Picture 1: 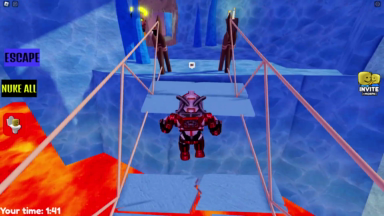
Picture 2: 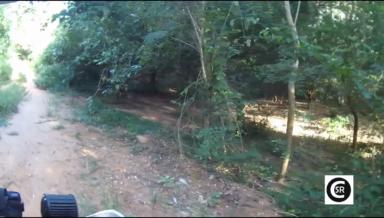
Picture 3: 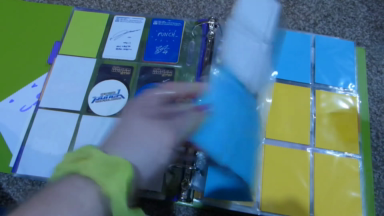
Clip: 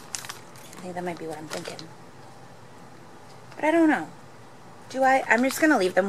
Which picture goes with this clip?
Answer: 3